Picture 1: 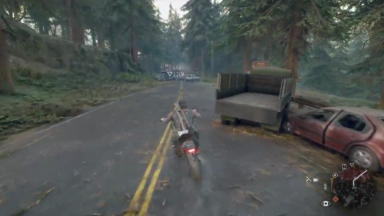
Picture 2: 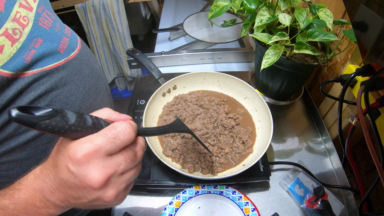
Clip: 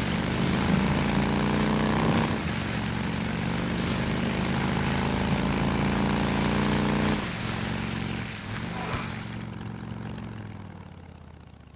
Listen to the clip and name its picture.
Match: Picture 1